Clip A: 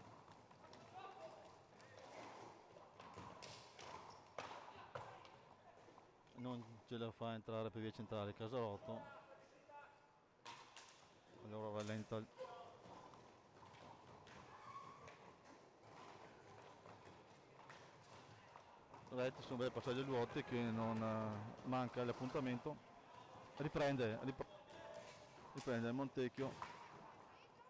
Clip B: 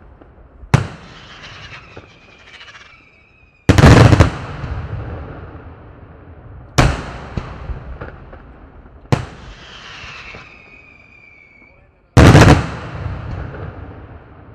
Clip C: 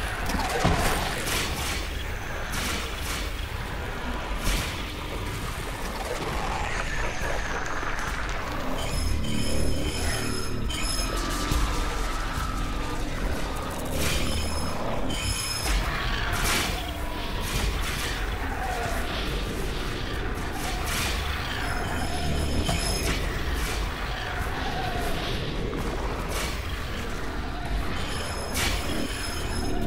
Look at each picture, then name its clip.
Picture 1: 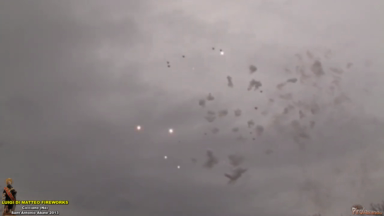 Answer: B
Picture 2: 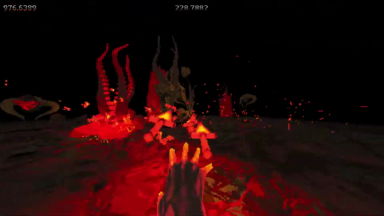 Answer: C